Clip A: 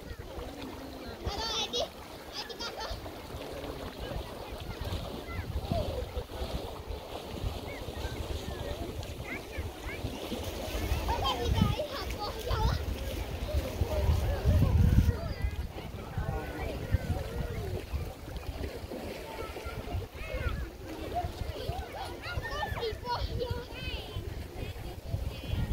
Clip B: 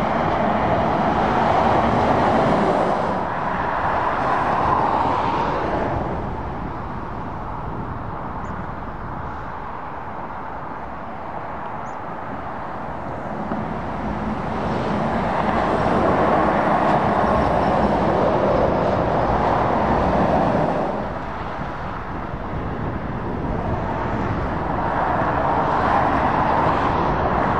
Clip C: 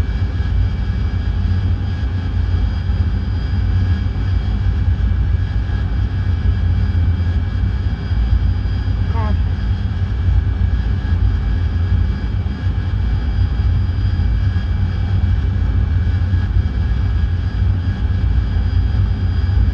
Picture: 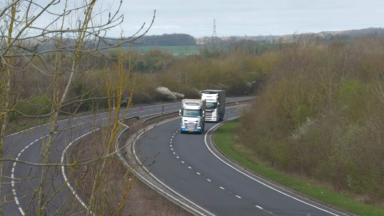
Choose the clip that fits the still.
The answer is B